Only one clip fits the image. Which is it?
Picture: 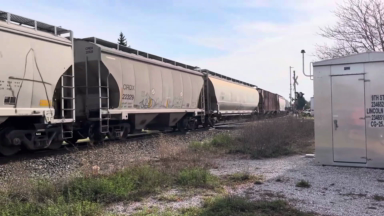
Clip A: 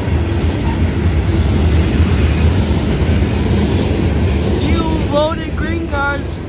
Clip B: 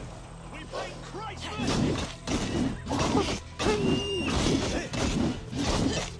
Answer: A